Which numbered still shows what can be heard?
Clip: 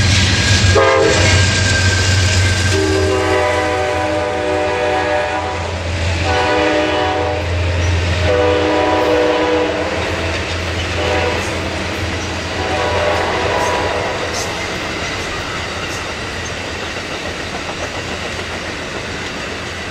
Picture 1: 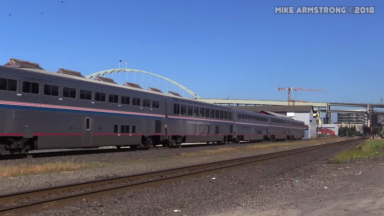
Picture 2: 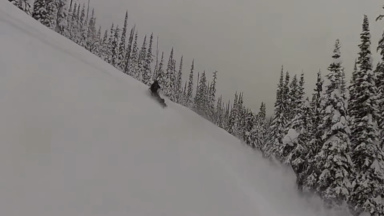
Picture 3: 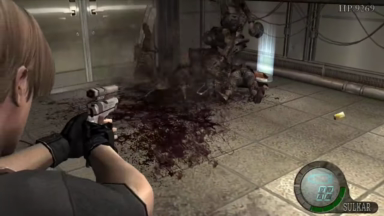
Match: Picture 1